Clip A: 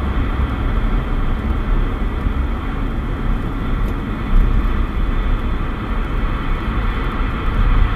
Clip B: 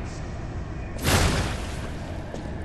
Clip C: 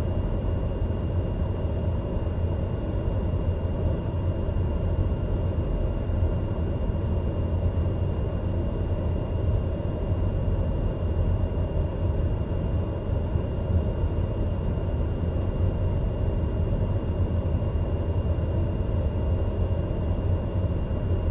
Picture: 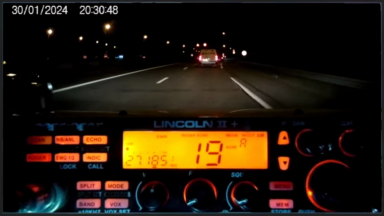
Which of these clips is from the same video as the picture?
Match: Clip A